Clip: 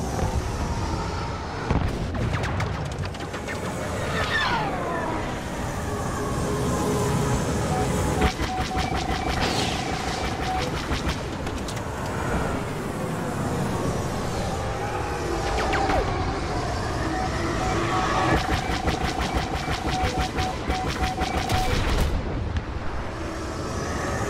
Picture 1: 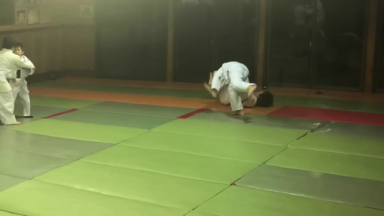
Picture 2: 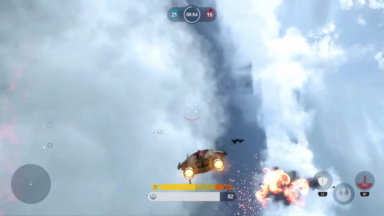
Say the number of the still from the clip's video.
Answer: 2